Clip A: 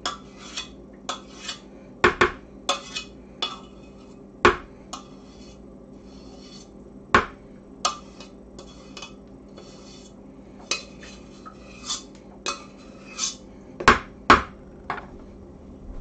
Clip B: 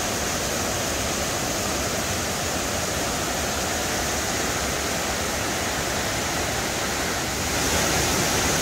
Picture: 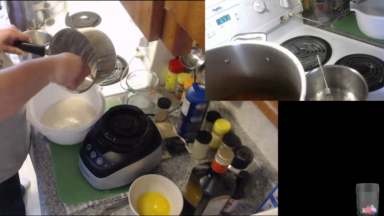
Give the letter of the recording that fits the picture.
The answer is A